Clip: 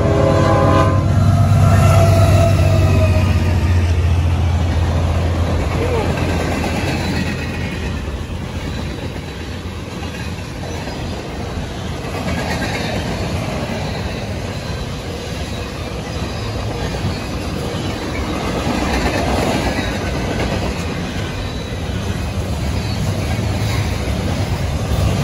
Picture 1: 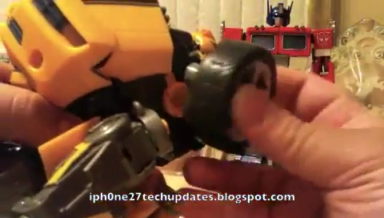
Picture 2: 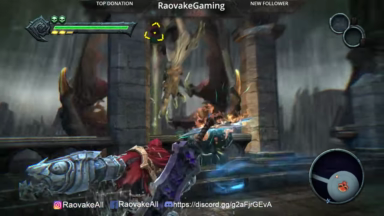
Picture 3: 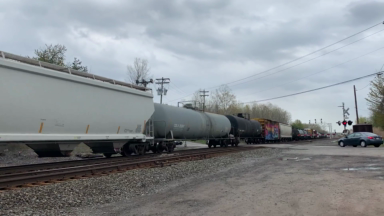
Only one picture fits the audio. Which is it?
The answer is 3